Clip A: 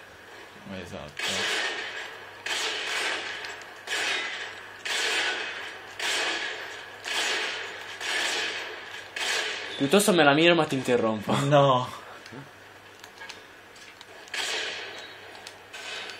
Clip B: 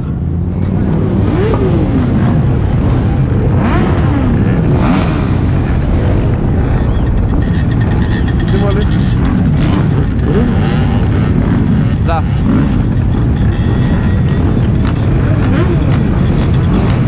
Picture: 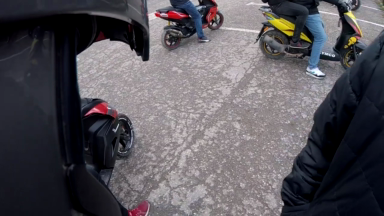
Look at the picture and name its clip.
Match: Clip B